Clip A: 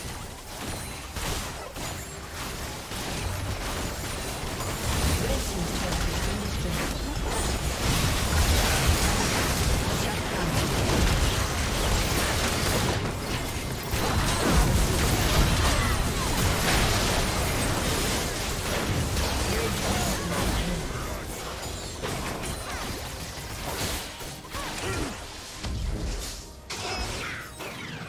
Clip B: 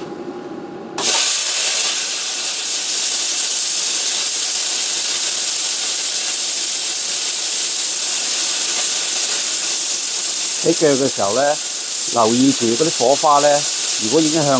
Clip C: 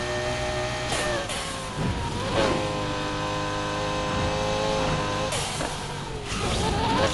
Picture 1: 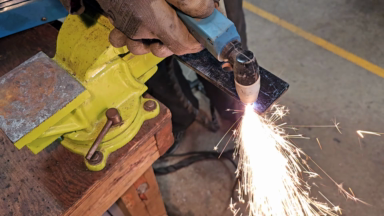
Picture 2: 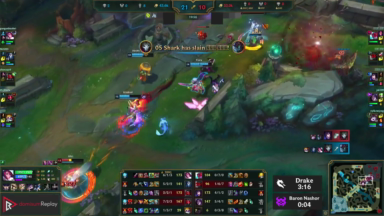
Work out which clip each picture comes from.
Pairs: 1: B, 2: A